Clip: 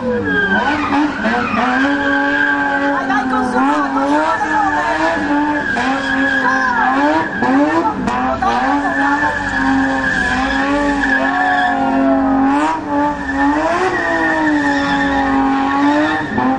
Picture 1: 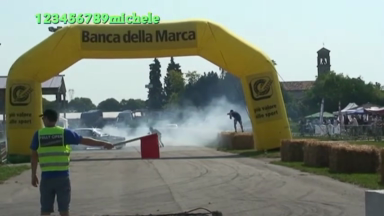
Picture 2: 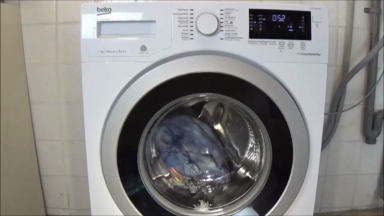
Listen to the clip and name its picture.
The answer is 1